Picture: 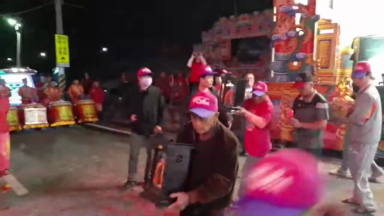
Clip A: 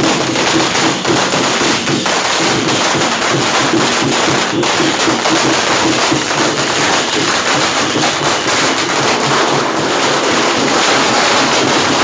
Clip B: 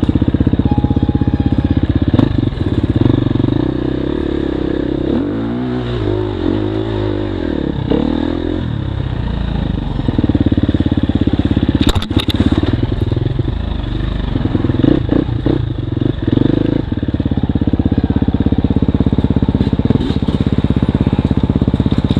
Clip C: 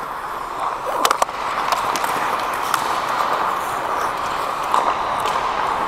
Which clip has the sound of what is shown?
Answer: A